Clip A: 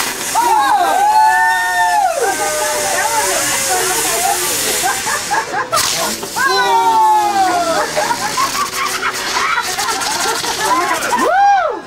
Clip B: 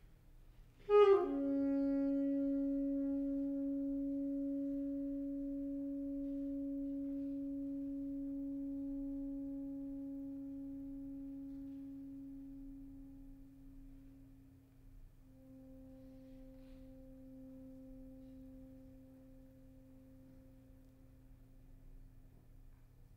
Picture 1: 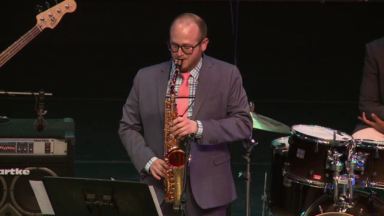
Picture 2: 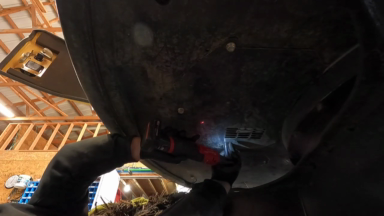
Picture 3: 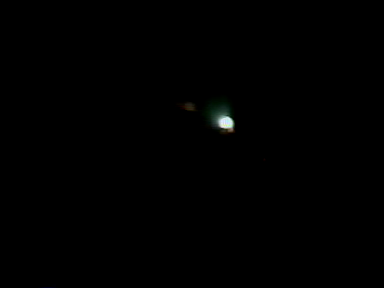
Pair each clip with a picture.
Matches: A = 3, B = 1